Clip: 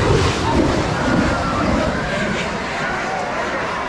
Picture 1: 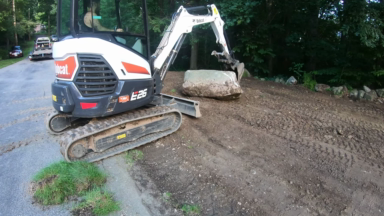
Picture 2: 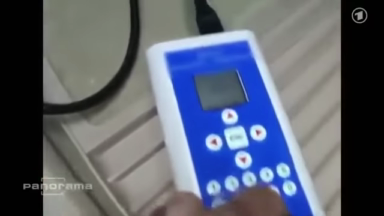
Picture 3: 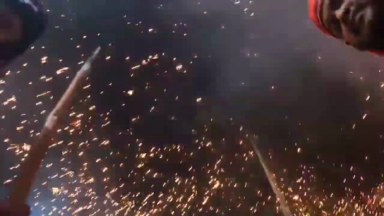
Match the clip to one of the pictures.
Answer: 3